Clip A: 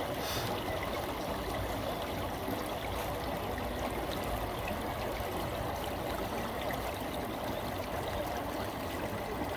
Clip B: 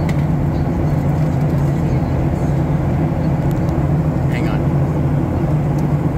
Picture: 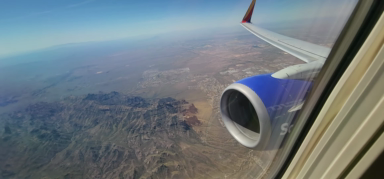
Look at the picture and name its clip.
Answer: B